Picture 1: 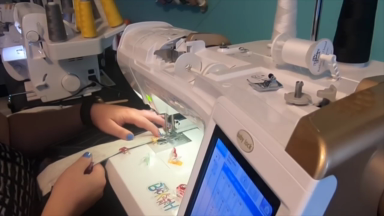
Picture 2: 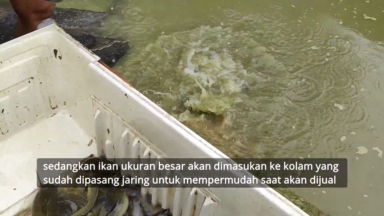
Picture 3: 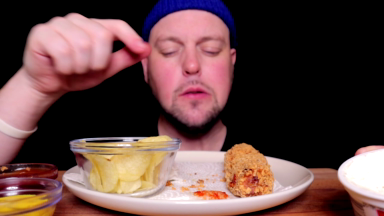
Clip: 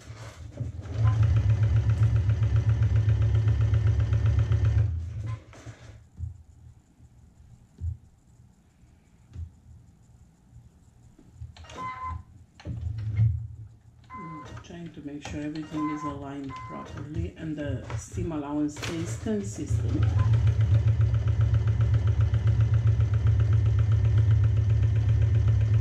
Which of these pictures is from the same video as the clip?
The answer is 1